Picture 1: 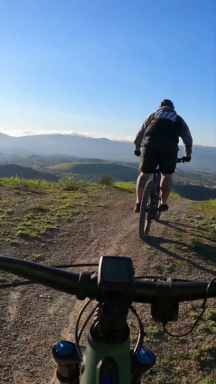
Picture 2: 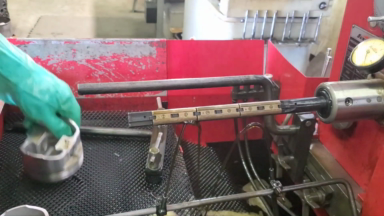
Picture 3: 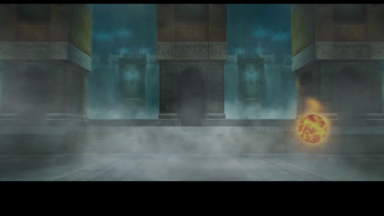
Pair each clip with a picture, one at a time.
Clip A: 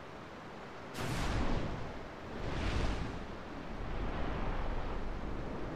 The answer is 3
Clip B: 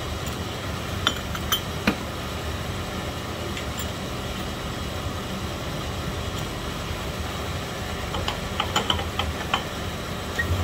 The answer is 2